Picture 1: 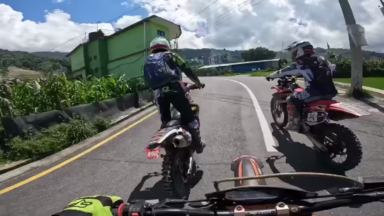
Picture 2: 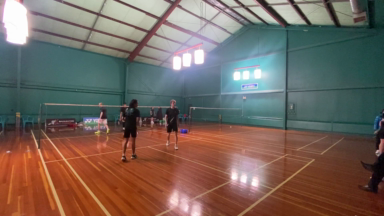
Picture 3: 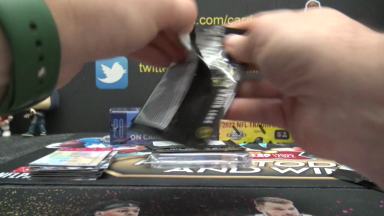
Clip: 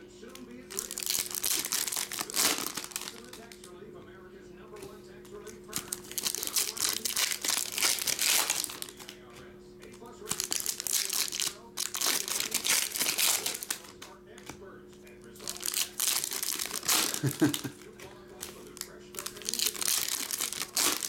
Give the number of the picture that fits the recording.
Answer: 3